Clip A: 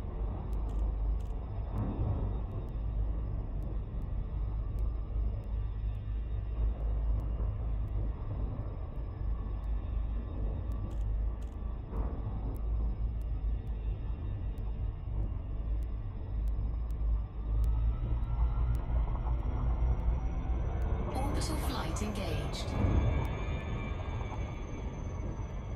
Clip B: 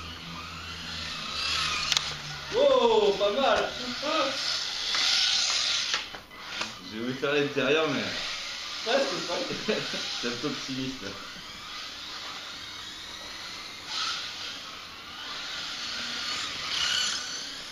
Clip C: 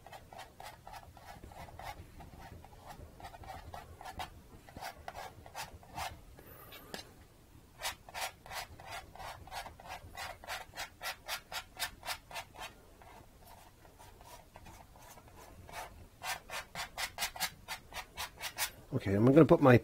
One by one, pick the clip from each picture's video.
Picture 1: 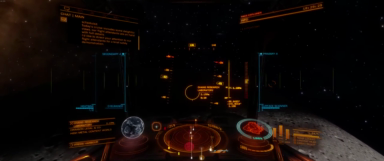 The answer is A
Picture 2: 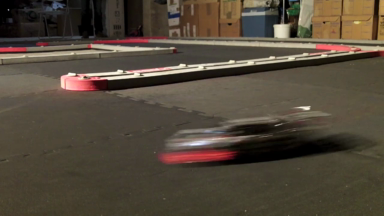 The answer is B